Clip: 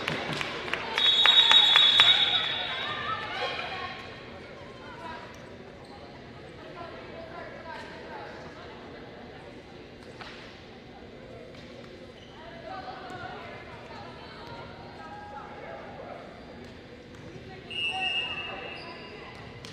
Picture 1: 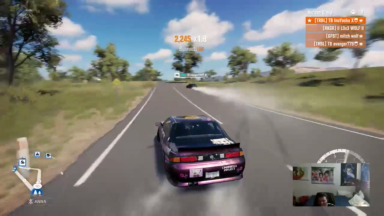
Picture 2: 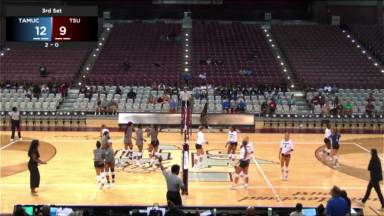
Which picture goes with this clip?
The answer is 2